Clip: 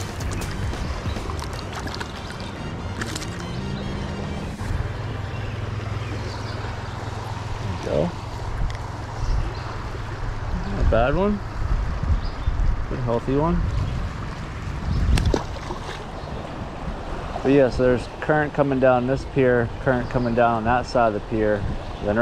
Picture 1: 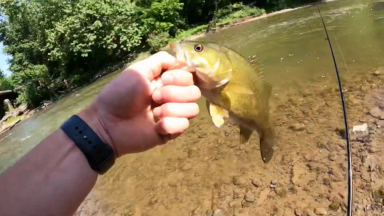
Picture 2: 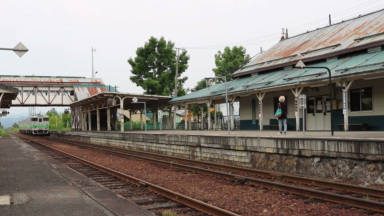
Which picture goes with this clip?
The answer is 1